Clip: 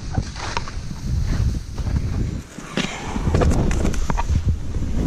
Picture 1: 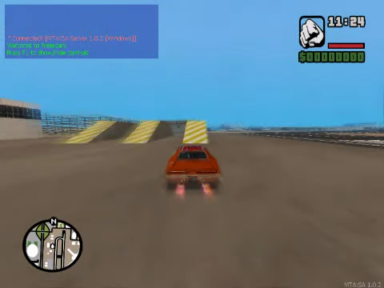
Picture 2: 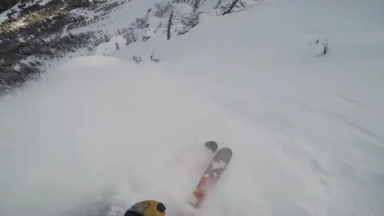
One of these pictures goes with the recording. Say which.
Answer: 2